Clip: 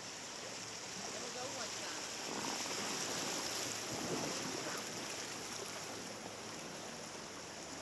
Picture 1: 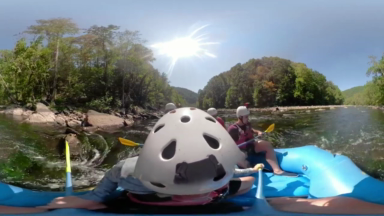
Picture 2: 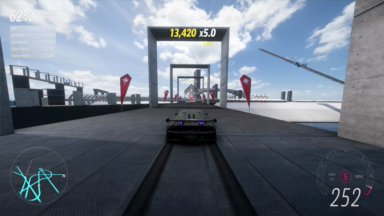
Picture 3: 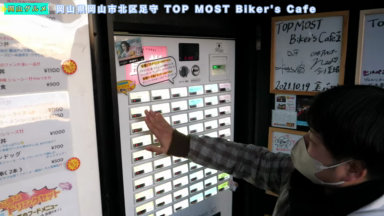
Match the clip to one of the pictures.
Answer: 1